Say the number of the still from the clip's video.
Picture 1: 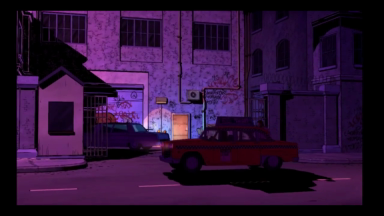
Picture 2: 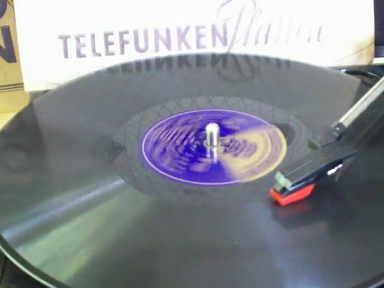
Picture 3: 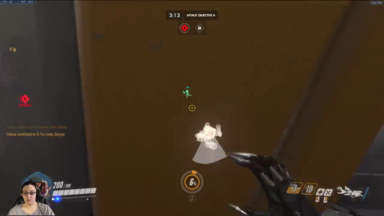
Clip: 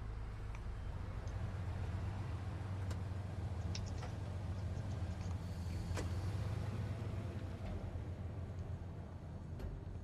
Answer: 1